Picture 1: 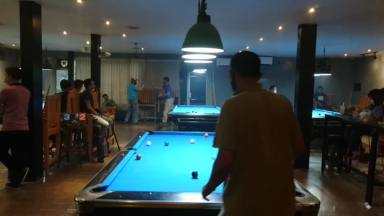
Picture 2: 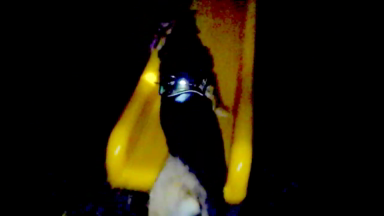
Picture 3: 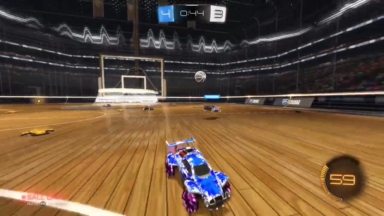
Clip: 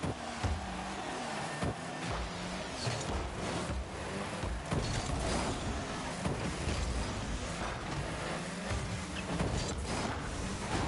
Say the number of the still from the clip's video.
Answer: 3